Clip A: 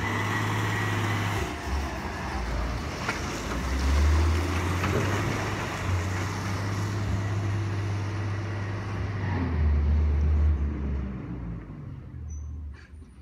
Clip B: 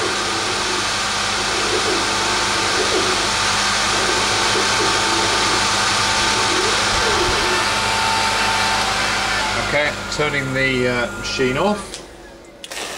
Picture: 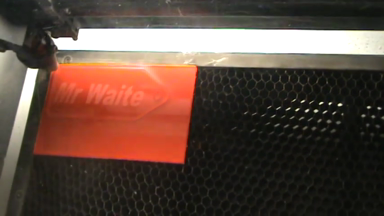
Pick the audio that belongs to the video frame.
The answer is B